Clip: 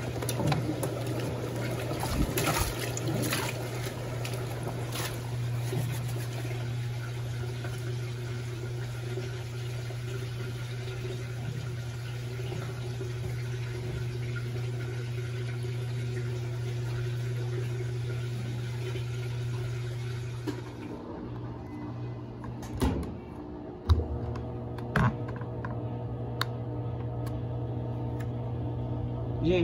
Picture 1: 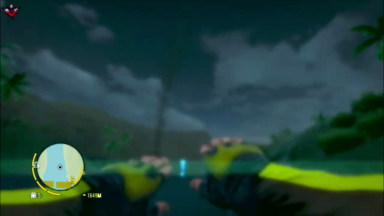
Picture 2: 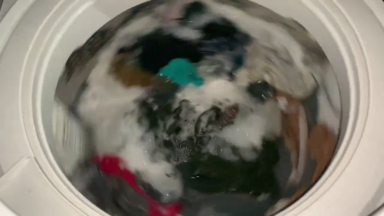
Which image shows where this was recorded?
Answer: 2